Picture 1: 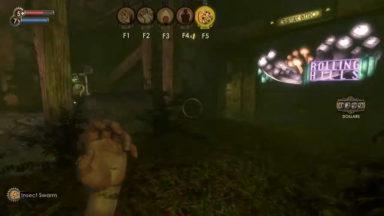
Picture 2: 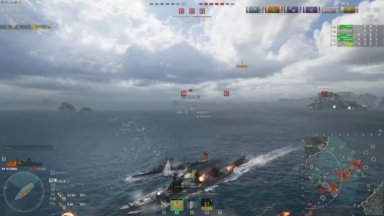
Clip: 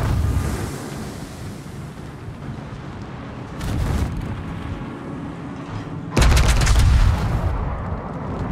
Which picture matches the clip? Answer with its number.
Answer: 2